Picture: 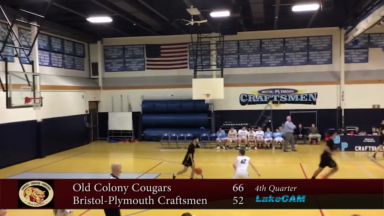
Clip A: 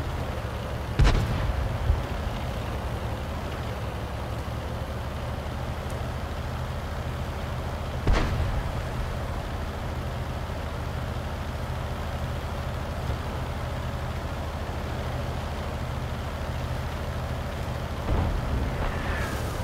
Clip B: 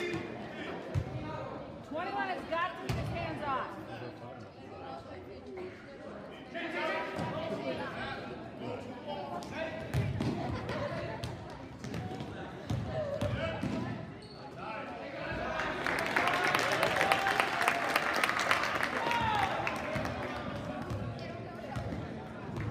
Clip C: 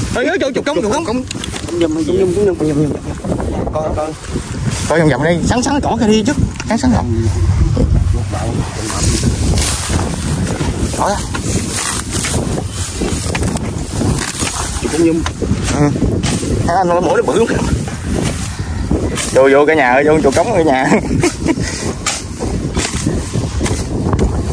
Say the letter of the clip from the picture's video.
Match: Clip B